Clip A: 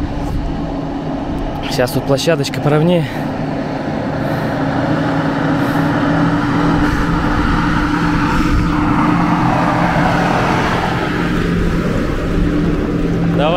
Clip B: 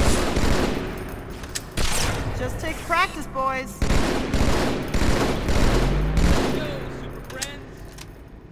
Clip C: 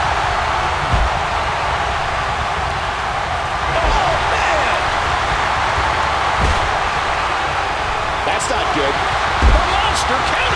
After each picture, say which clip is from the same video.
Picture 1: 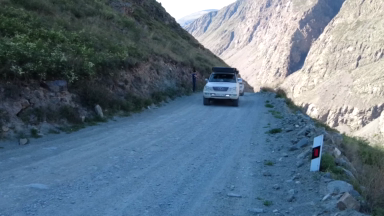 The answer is A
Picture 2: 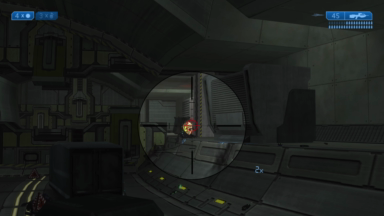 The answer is B